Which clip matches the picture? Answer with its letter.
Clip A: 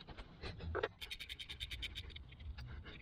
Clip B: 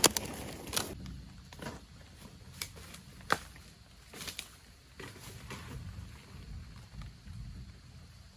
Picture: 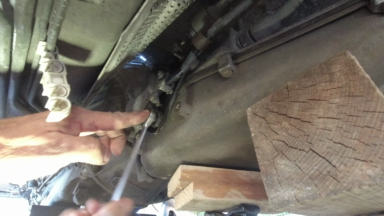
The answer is A